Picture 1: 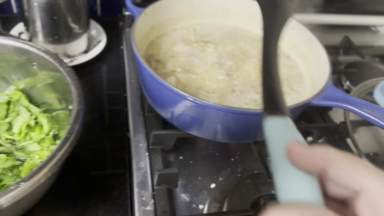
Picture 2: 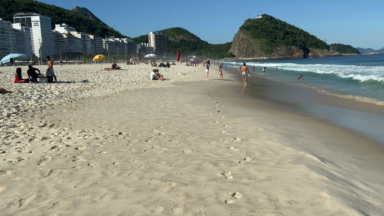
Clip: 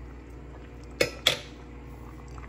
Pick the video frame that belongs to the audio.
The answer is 1